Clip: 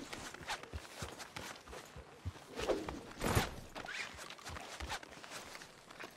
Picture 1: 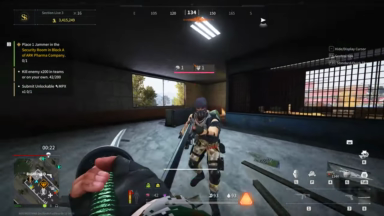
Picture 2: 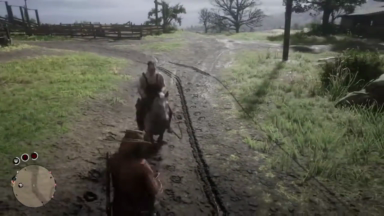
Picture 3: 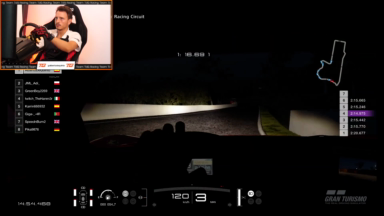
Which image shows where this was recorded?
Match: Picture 2